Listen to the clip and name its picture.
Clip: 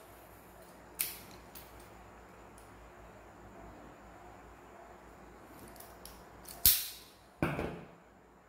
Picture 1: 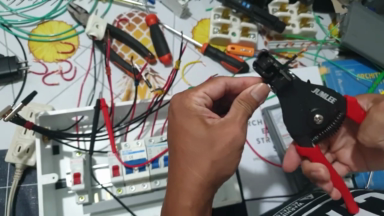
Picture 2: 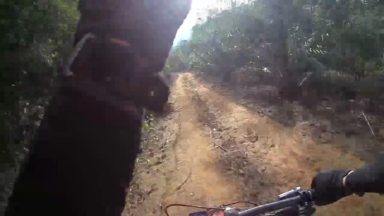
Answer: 1